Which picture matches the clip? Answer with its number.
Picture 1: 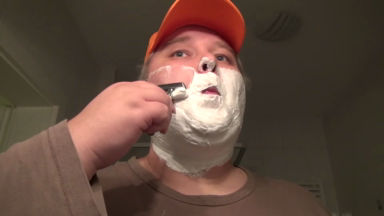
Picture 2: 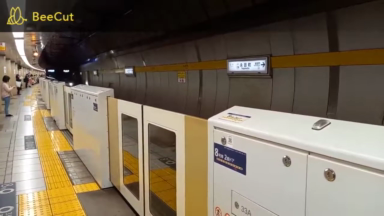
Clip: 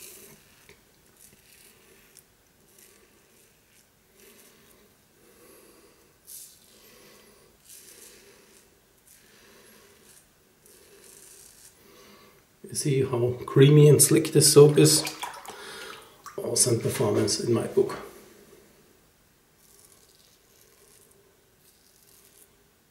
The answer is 1